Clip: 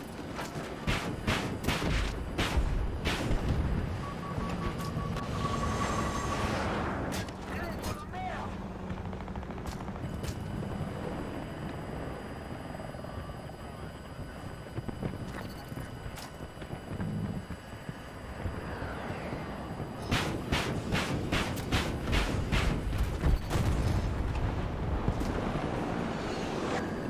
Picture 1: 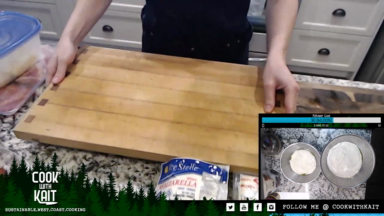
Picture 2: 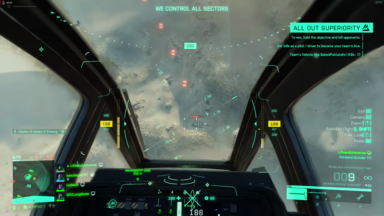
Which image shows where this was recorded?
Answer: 2